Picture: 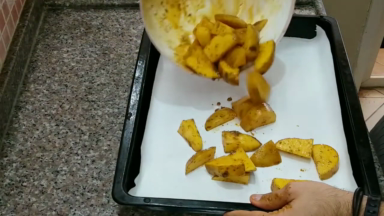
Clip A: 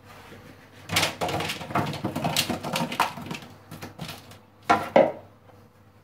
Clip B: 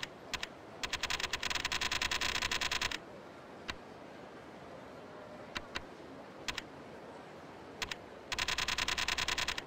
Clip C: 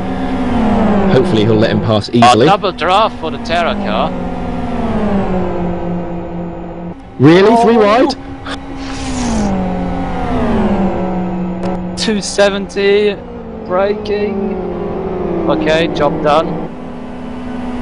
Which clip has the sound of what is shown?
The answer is A